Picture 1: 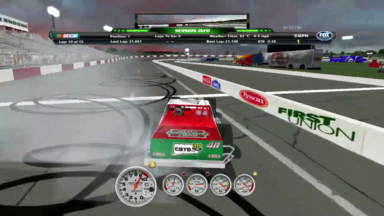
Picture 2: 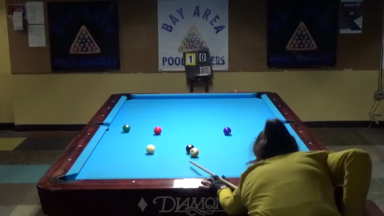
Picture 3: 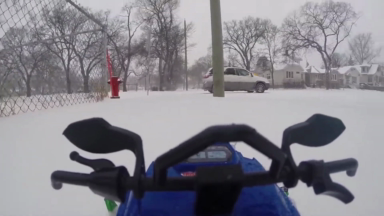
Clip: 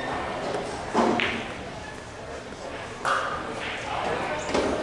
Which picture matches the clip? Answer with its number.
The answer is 2